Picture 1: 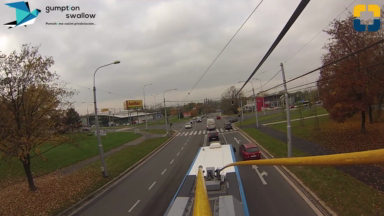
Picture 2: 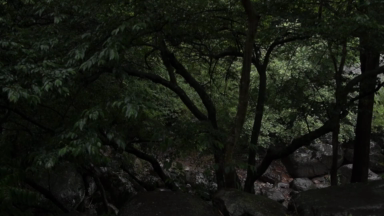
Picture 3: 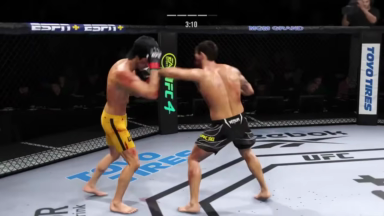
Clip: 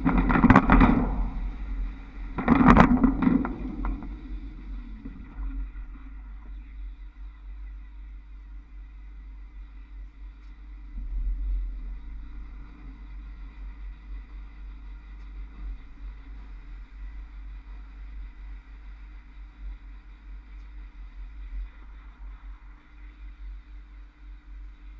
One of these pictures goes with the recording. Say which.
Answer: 1